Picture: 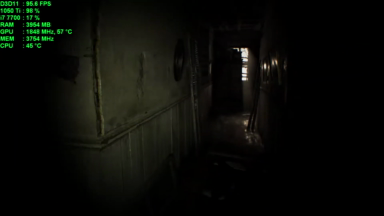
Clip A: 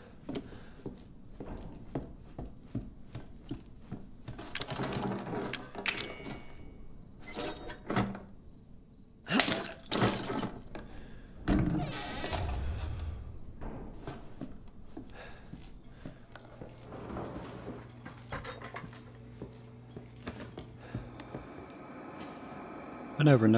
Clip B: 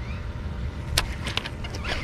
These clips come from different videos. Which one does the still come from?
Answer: A